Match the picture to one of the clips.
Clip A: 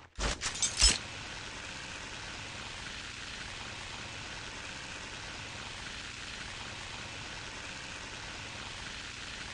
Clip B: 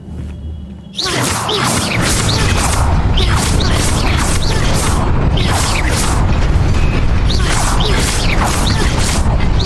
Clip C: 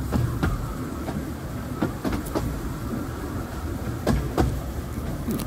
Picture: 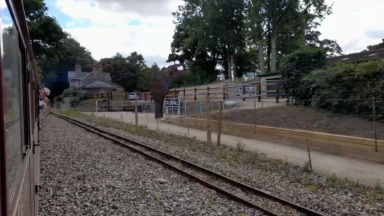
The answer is C